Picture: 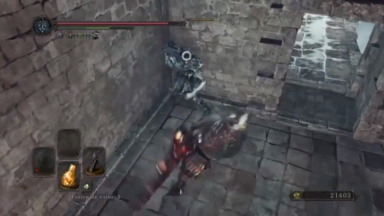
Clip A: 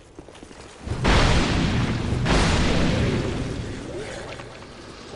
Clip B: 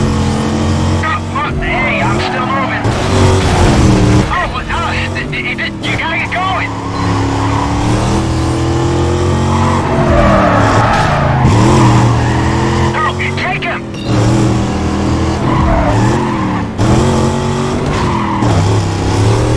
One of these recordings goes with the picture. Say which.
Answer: A